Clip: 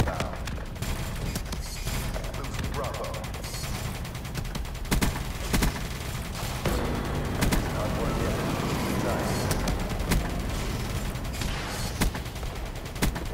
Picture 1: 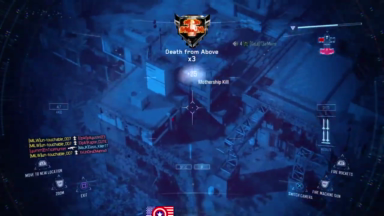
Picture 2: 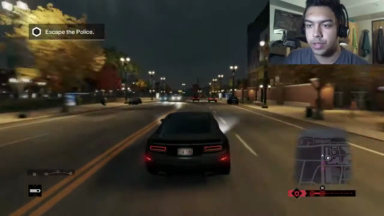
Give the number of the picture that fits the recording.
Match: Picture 1